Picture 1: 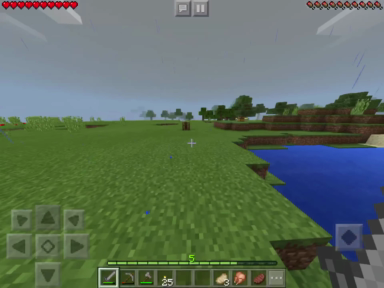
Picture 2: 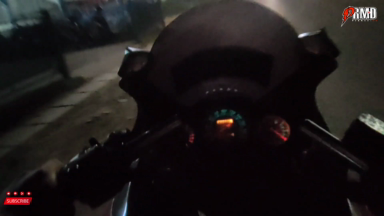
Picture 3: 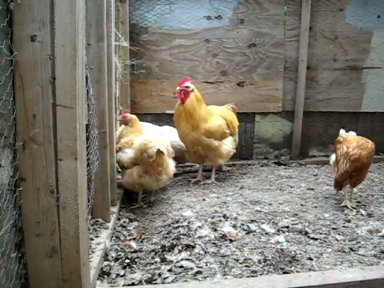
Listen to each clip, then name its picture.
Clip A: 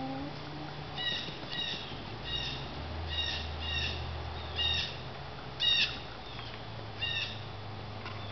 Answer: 3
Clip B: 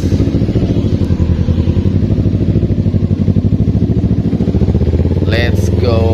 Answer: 2